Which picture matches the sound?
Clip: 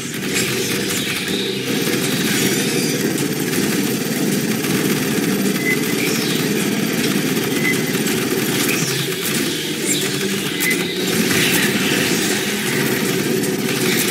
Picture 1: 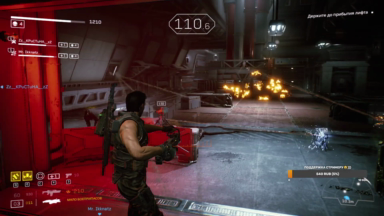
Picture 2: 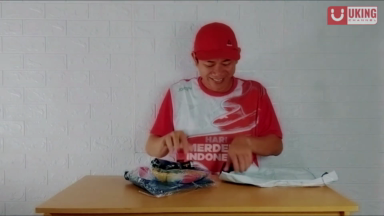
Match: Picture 1